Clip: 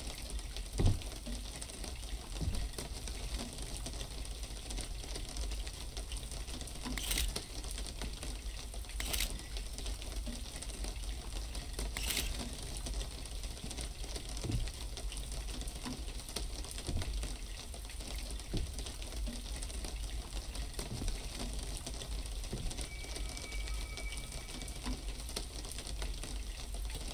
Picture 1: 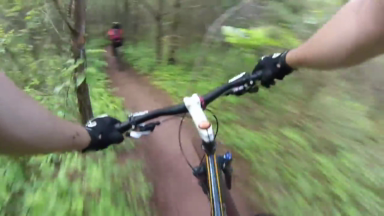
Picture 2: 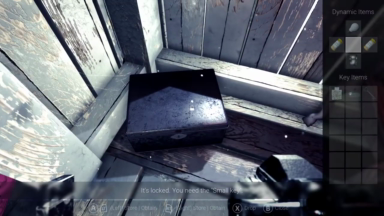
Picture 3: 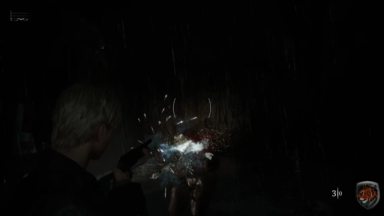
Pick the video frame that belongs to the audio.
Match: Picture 2